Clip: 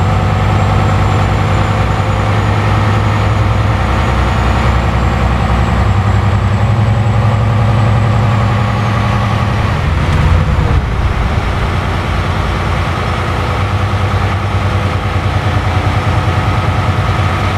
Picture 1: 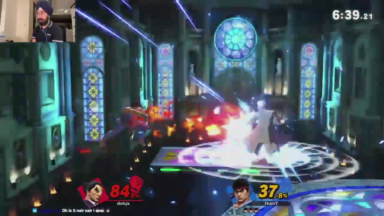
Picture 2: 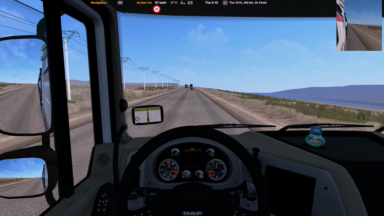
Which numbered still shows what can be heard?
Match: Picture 2